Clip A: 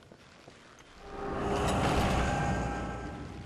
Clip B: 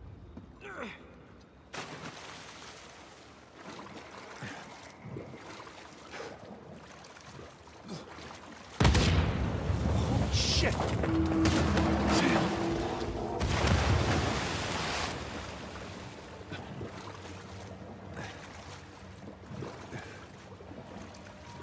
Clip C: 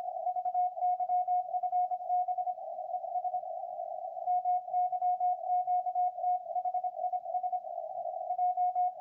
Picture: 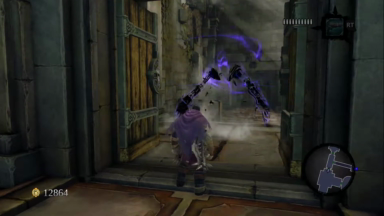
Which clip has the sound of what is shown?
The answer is A